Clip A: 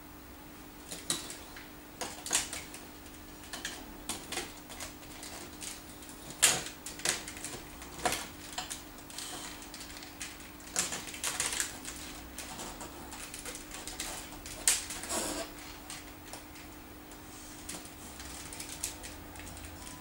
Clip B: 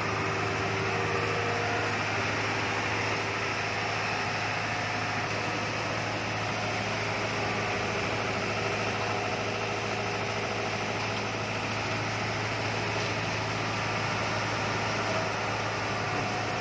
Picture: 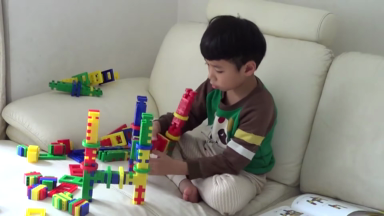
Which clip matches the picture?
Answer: A